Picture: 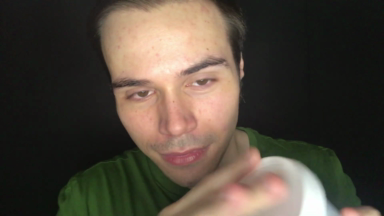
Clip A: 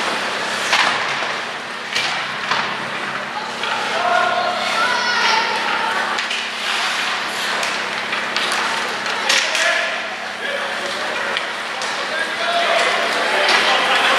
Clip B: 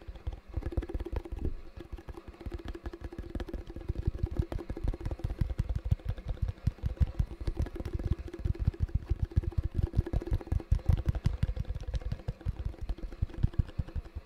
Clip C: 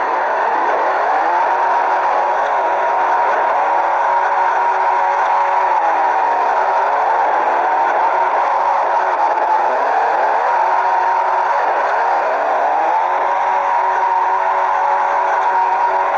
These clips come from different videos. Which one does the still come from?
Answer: B